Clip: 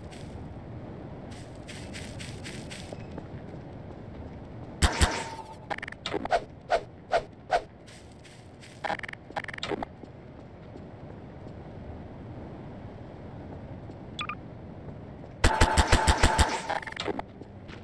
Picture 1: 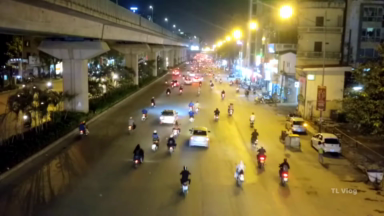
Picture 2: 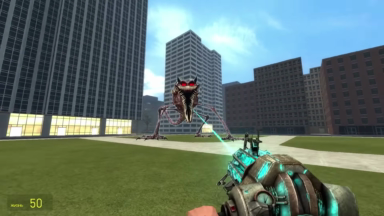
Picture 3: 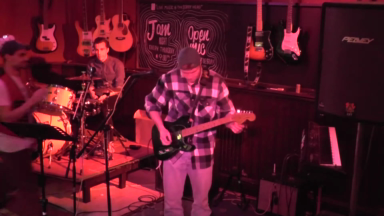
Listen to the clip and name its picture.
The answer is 2